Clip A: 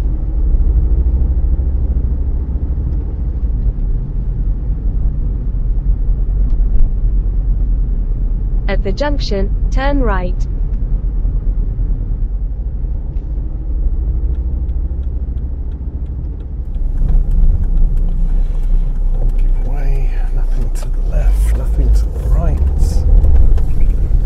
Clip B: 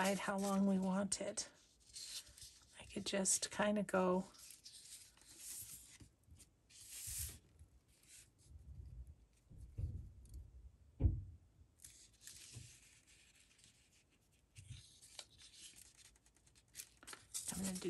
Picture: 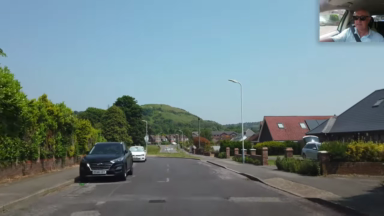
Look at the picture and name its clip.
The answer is A